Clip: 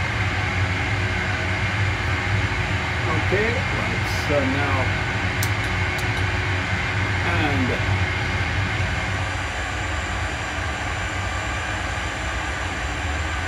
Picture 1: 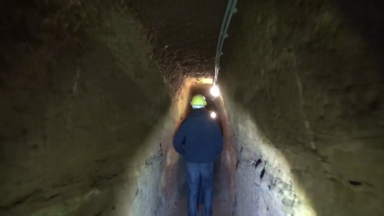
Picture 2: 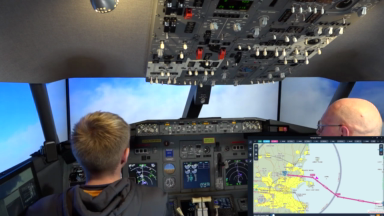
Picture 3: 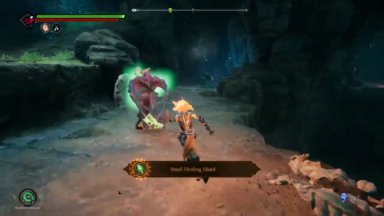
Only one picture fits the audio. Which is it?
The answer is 2